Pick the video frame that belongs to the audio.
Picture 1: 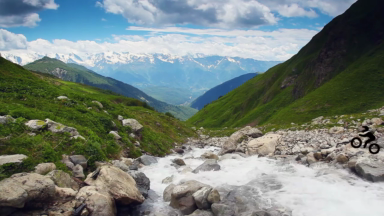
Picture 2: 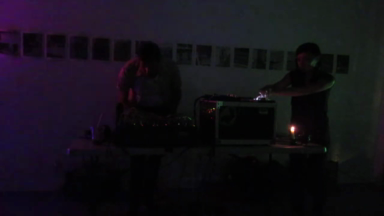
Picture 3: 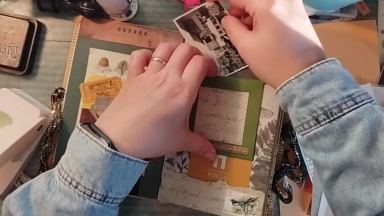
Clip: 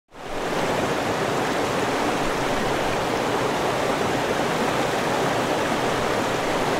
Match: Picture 1